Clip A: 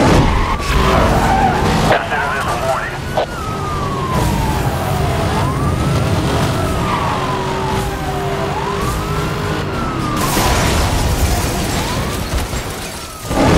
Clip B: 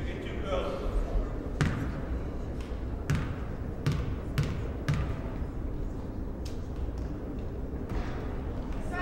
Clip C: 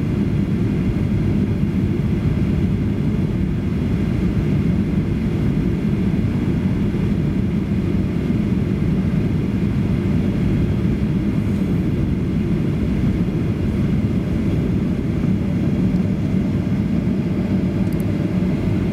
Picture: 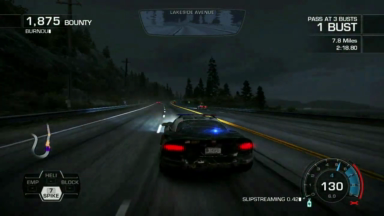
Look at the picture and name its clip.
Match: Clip A